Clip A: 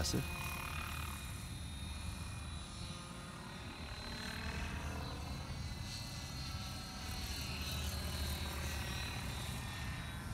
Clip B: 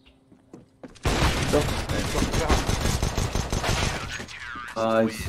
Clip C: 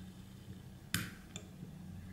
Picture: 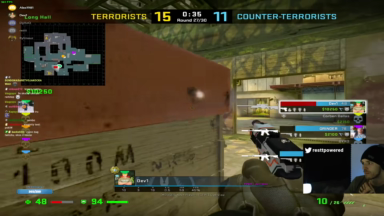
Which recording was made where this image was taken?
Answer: B